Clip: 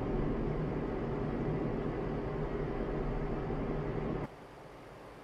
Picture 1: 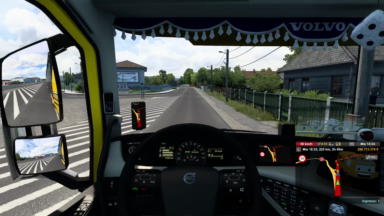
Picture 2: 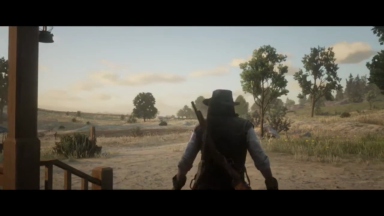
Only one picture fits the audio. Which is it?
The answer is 1